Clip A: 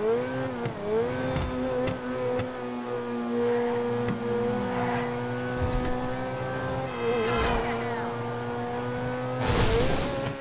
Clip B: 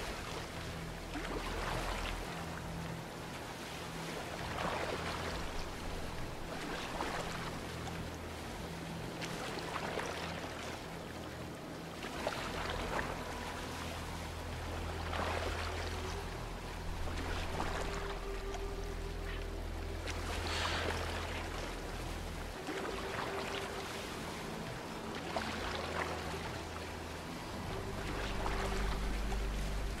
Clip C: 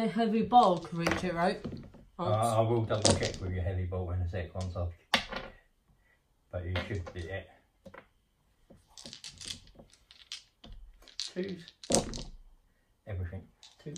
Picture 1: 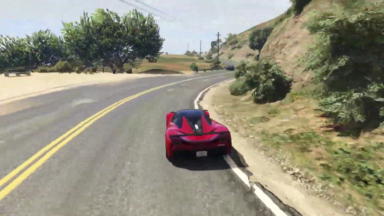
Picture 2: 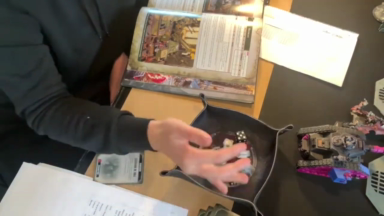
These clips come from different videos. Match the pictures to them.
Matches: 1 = A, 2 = C